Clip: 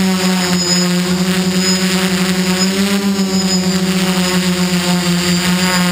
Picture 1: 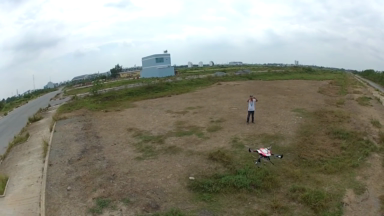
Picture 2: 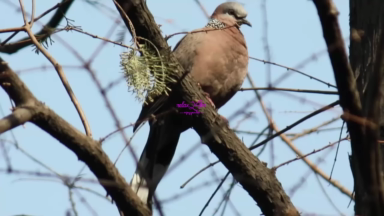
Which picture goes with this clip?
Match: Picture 1